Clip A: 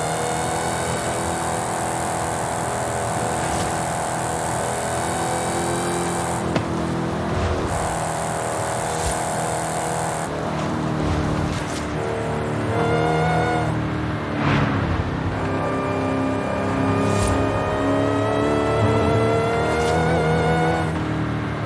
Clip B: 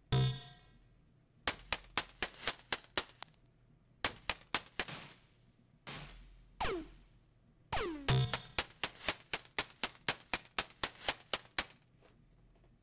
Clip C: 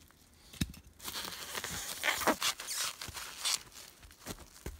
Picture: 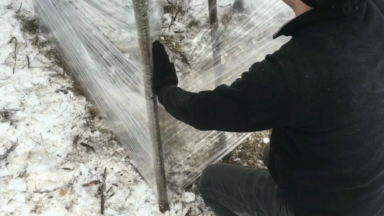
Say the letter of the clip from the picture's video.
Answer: C